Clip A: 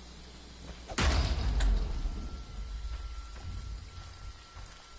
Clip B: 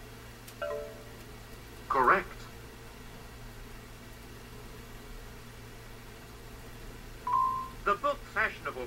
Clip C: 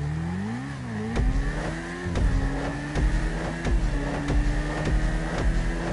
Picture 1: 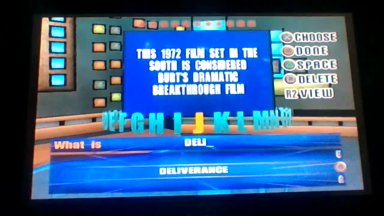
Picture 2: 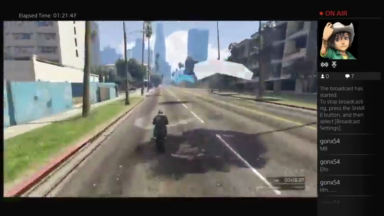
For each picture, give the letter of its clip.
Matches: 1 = B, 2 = C